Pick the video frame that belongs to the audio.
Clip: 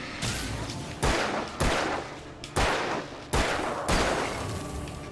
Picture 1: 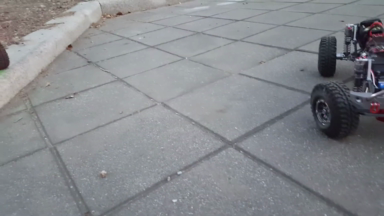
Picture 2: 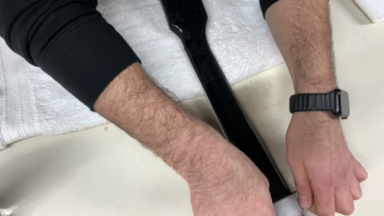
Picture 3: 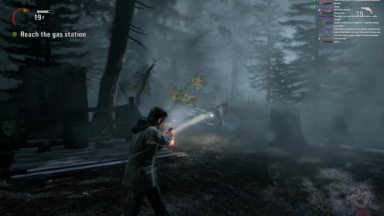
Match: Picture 3